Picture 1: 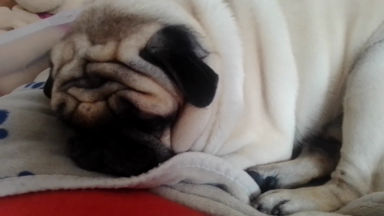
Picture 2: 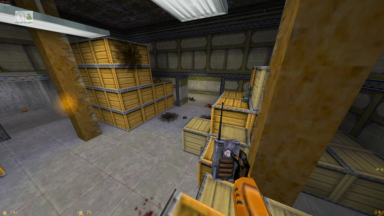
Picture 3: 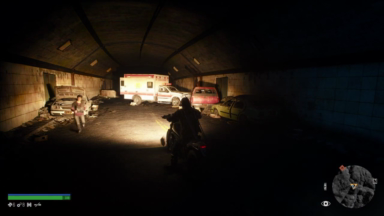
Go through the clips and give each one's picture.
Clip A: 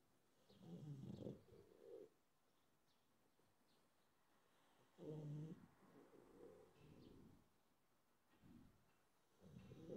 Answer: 1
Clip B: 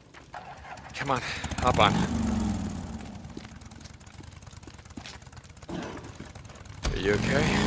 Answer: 3